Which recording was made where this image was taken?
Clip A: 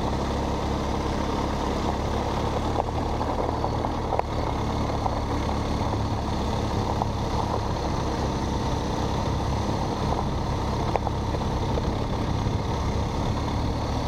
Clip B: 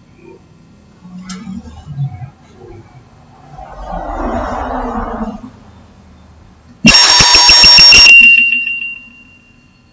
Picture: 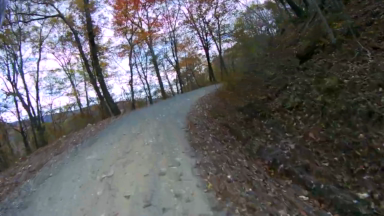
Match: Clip A